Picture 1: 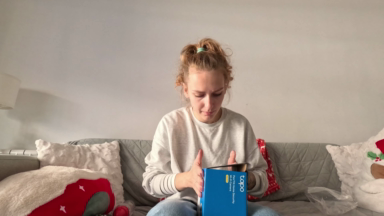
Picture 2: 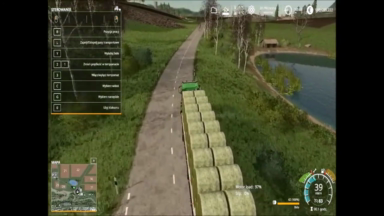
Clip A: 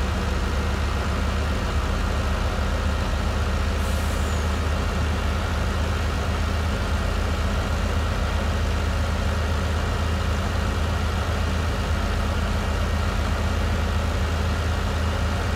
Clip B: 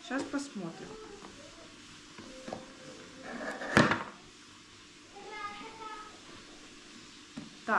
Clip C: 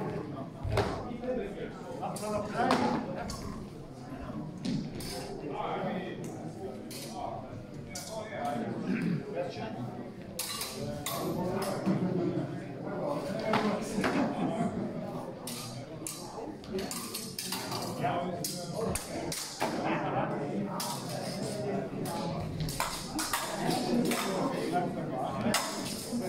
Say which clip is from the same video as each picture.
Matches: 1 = B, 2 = A